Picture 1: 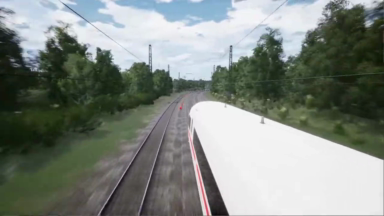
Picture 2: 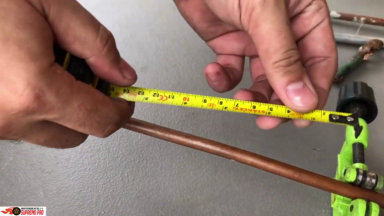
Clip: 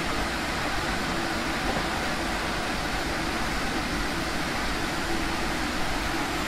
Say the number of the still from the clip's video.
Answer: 1